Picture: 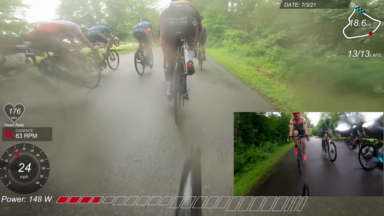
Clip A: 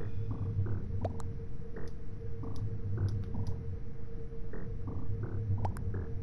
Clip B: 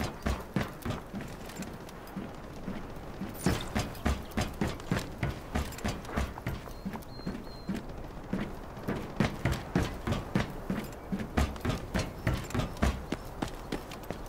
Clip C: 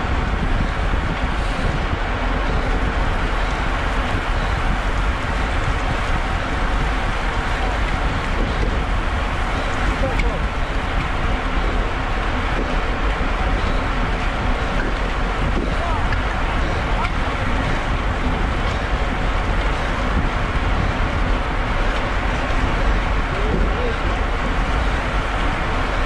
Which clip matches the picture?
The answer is C